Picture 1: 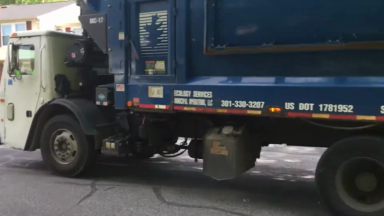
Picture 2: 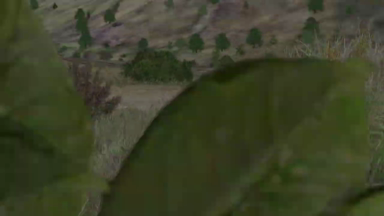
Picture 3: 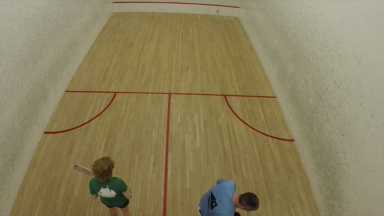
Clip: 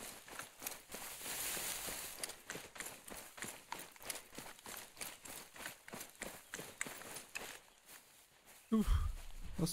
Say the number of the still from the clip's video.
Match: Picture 2